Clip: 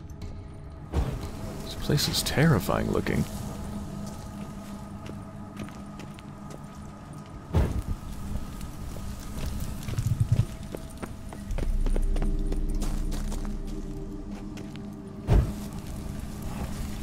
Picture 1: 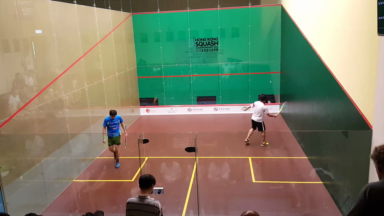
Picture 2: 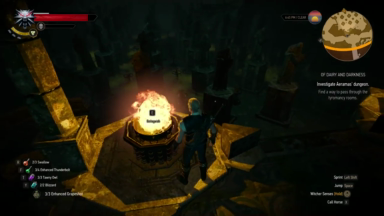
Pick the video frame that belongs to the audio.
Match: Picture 2